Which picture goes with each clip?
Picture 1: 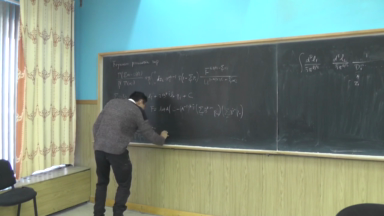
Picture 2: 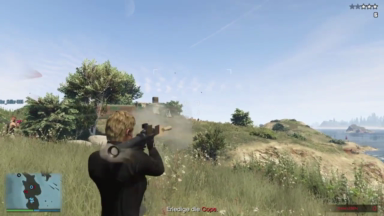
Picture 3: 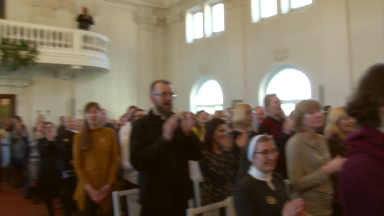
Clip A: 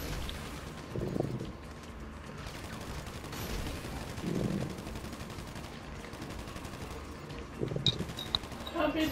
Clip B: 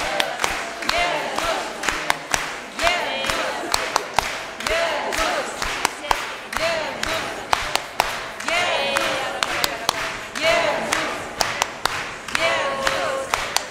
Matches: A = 2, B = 3